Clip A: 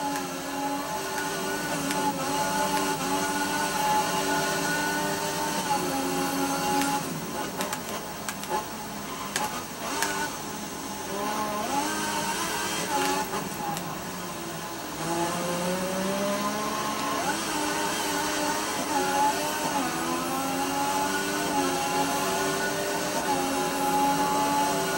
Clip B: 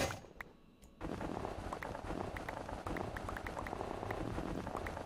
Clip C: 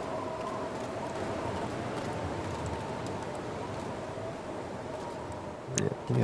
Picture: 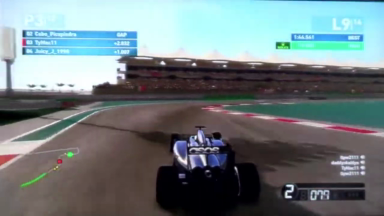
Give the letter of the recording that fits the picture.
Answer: A